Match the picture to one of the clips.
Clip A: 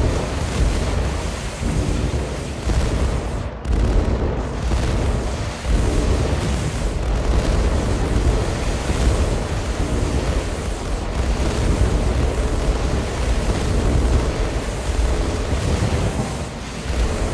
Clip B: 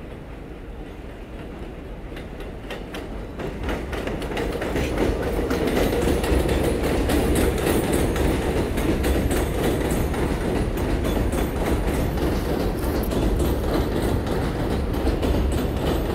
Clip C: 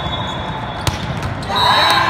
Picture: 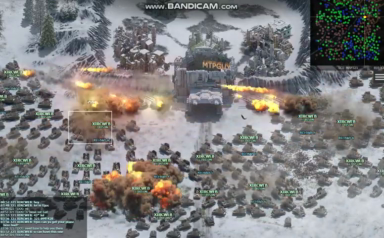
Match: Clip A